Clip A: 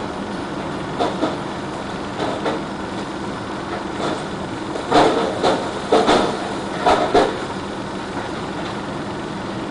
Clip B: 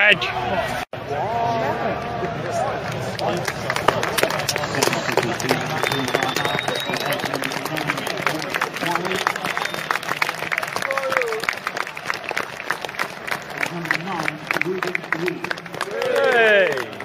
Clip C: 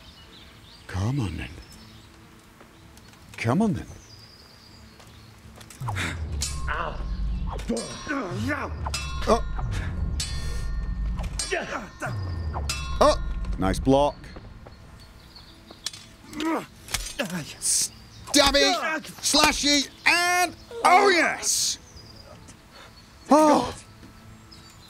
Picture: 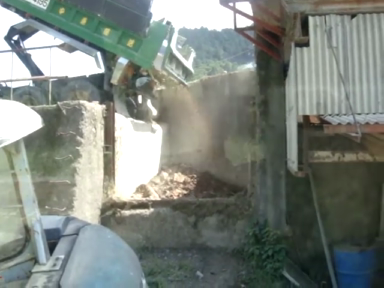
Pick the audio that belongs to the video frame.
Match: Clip A